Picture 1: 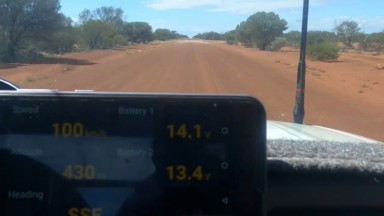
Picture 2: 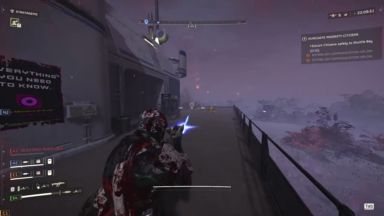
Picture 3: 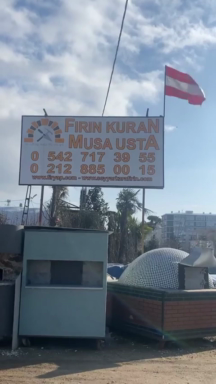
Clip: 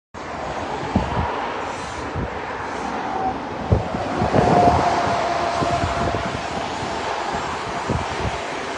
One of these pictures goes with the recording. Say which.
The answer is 3